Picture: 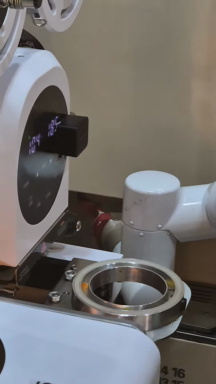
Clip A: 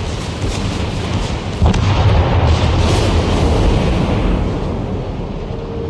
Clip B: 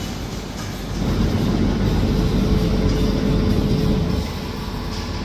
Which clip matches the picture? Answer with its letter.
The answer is B